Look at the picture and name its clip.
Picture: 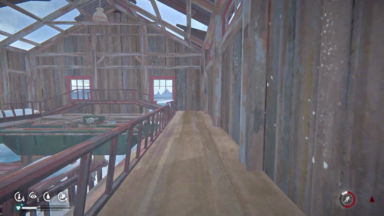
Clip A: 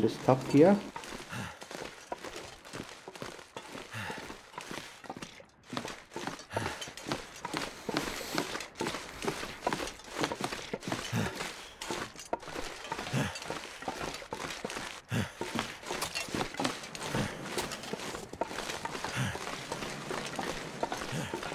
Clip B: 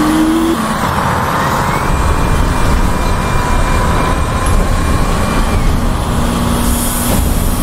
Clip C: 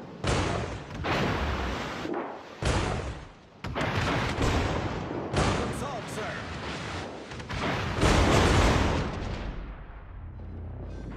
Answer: A